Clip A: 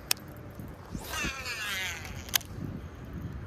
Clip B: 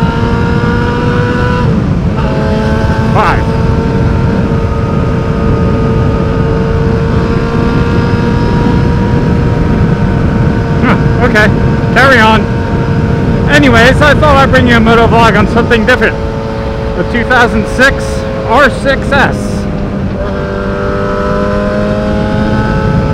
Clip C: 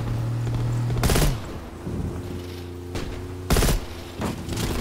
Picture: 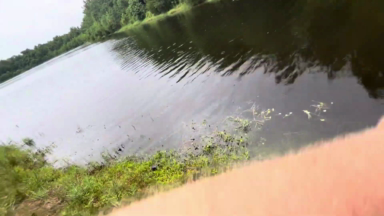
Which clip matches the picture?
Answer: A